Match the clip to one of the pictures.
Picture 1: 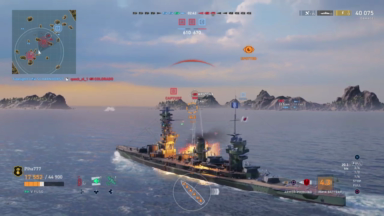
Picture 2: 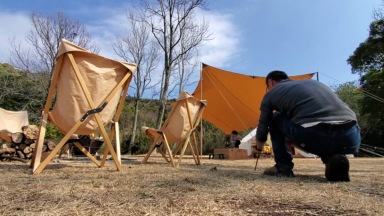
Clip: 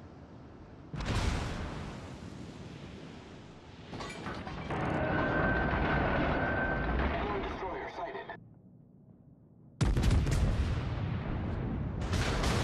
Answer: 1